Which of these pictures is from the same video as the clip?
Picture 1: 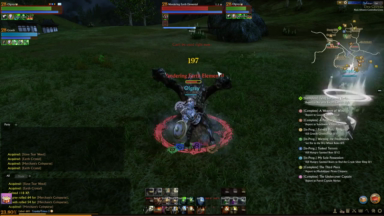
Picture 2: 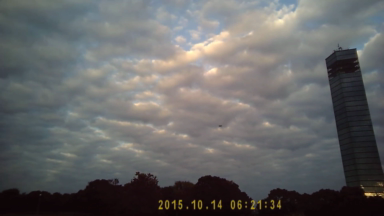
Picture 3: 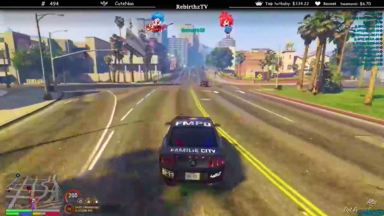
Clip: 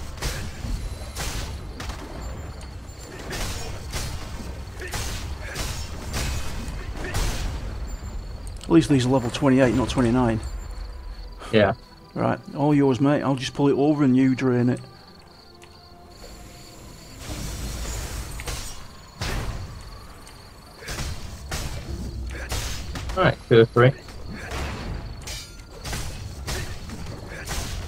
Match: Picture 1